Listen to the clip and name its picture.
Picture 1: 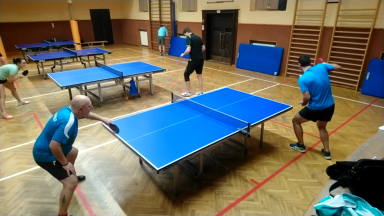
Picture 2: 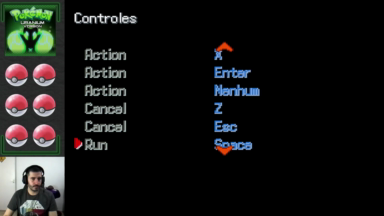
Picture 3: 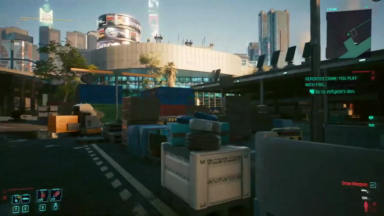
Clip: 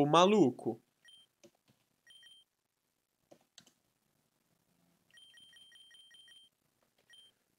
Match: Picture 2